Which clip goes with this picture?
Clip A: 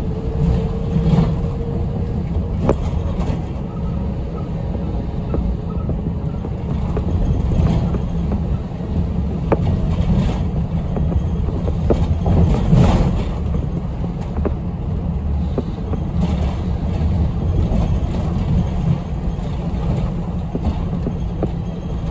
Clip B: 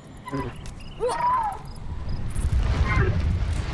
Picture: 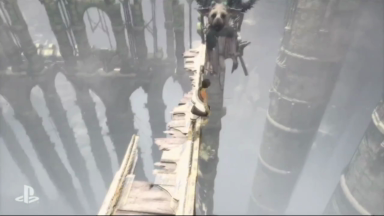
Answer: B